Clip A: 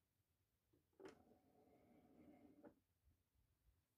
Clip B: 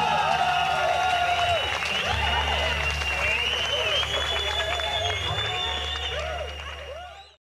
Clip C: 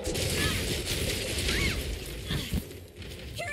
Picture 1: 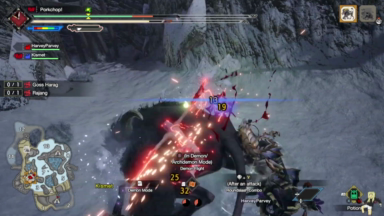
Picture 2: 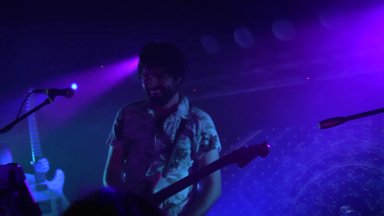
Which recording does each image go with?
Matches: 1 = C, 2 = B